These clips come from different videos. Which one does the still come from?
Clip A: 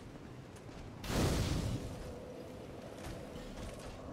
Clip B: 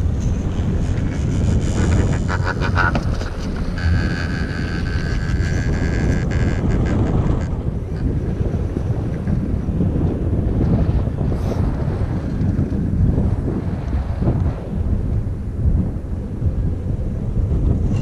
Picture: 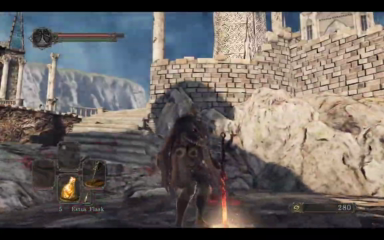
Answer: A